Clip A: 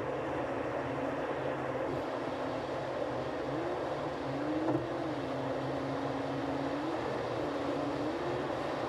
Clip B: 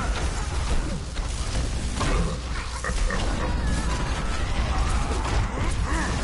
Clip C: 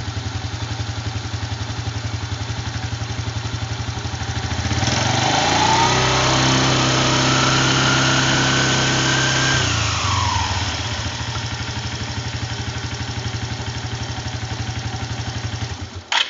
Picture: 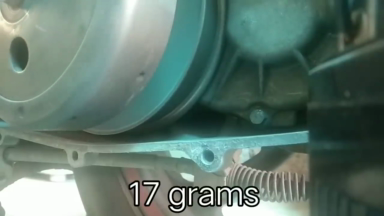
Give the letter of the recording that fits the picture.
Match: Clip C